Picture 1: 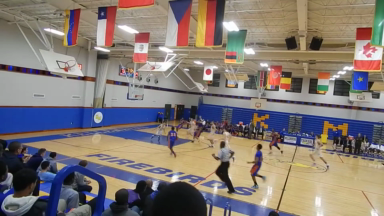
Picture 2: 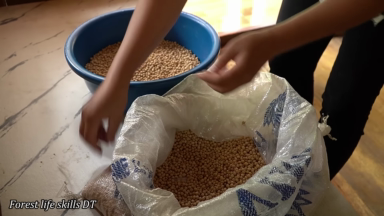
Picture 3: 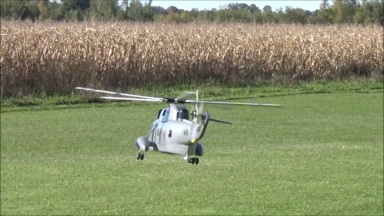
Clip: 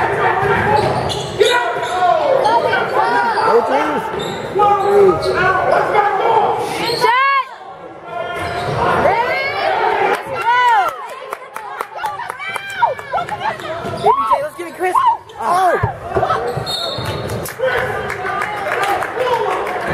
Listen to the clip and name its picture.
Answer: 1